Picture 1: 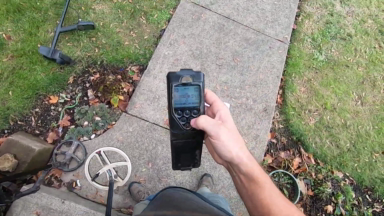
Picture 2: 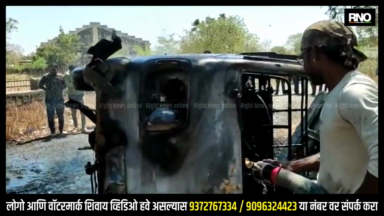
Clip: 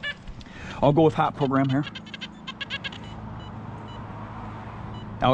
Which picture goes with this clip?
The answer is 1